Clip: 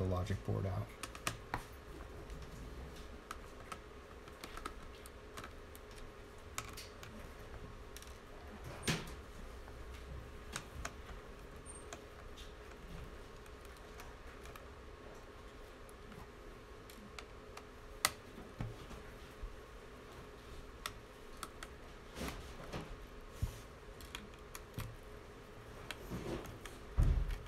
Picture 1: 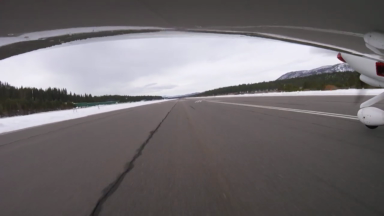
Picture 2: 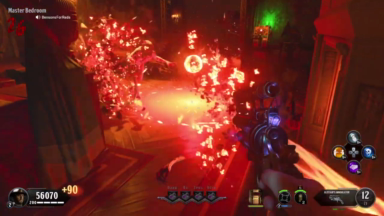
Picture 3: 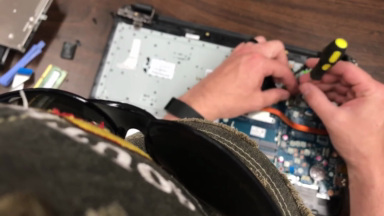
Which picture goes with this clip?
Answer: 3